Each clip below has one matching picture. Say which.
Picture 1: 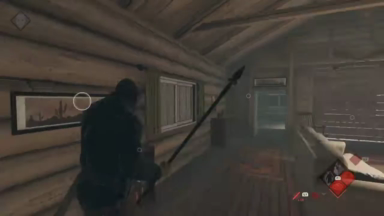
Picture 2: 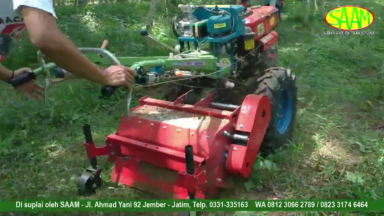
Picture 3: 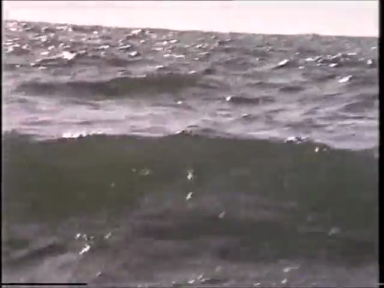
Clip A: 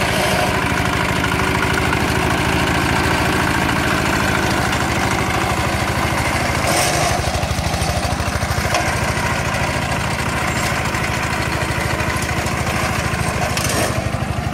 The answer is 2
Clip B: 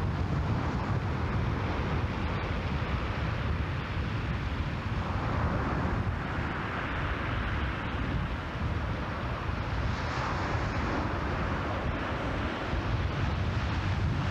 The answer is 3